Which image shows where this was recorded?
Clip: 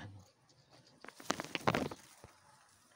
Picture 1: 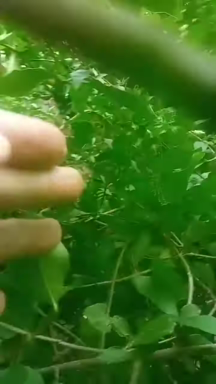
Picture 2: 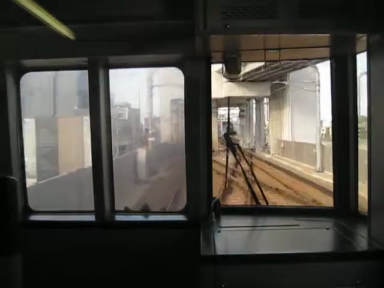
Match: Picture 1